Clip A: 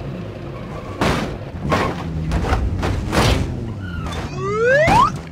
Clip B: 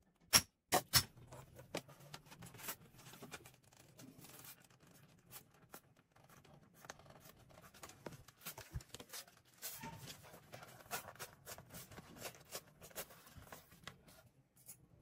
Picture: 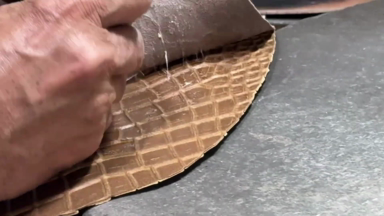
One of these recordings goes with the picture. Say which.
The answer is B